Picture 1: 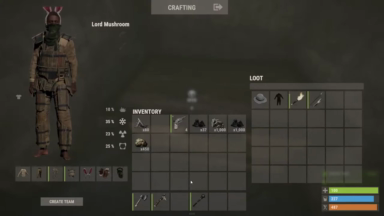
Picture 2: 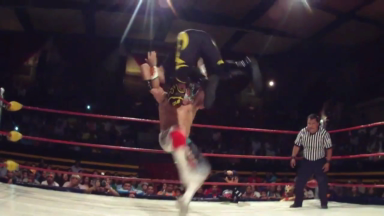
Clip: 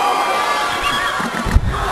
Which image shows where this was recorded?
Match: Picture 2